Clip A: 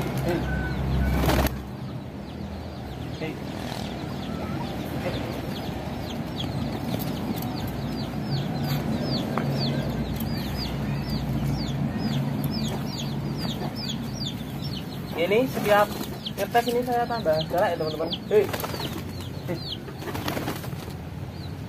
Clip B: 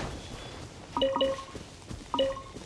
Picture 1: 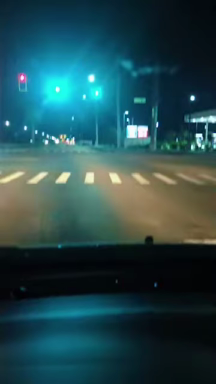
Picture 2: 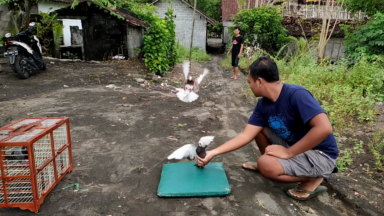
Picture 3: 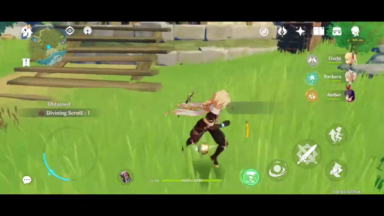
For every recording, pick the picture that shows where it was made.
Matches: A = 2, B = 3